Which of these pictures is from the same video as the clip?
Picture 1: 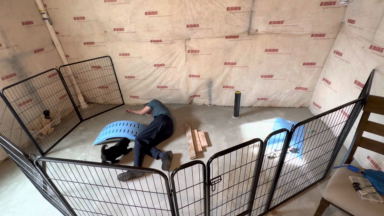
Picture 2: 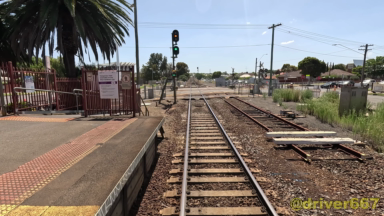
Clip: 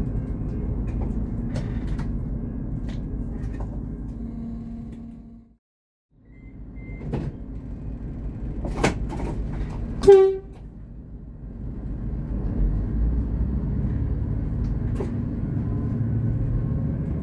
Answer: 2